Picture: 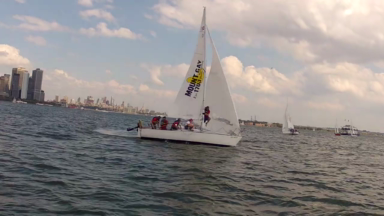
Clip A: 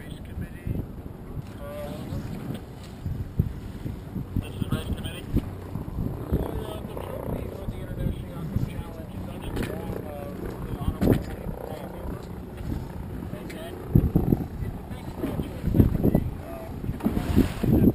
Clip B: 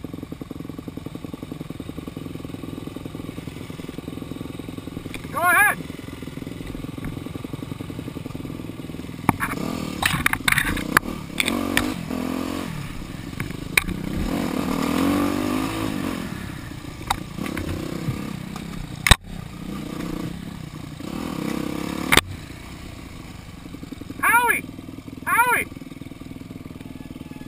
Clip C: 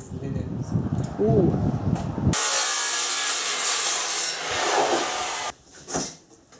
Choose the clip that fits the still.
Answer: A